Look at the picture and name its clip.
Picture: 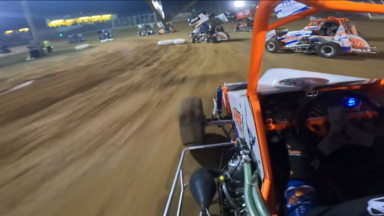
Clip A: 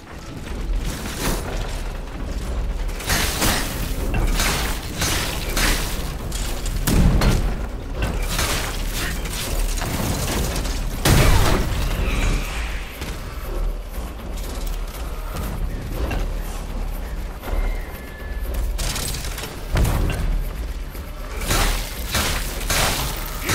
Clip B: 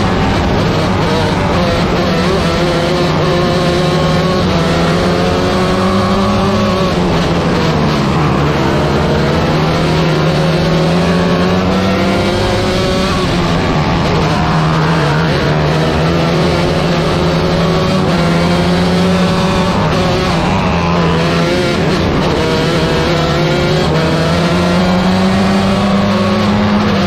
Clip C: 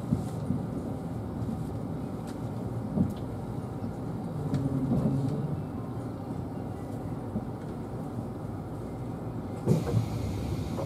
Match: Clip B